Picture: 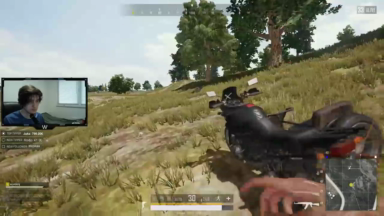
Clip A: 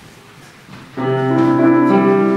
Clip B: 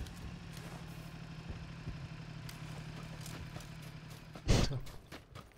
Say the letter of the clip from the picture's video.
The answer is B